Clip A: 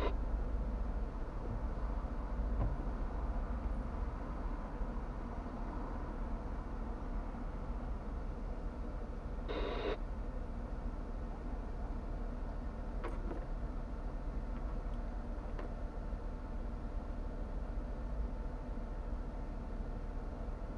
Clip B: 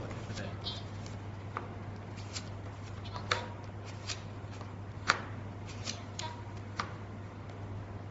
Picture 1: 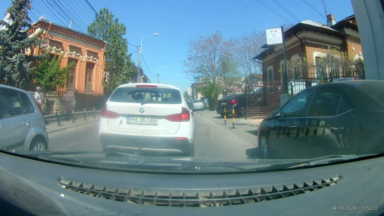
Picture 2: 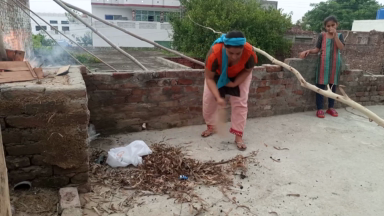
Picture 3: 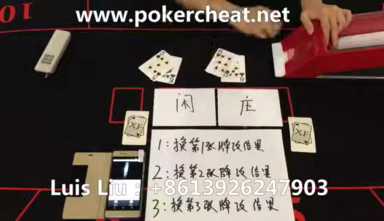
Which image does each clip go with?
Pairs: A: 1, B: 3